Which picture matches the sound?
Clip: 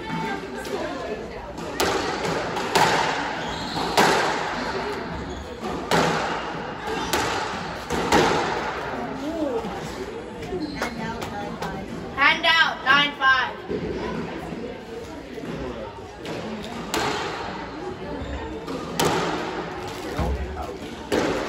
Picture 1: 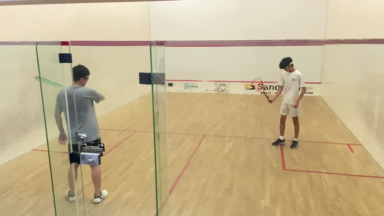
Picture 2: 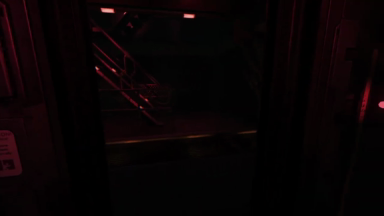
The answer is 1